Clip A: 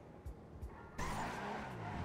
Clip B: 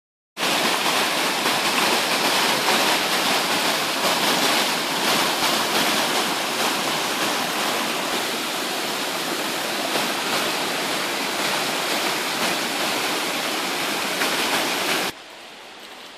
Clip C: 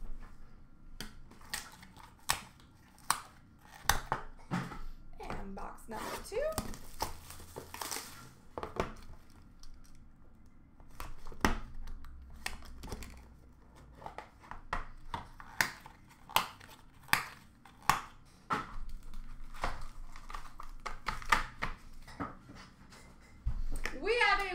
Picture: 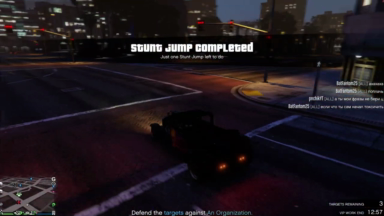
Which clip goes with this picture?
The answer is A